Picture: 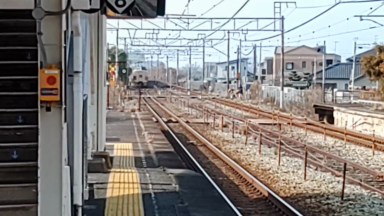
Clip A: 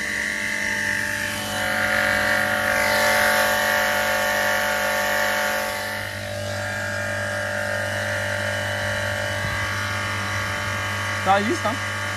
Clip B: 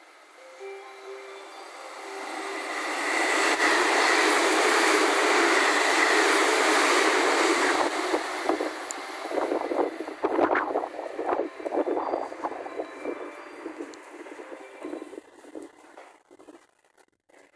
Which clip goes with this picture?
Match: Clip B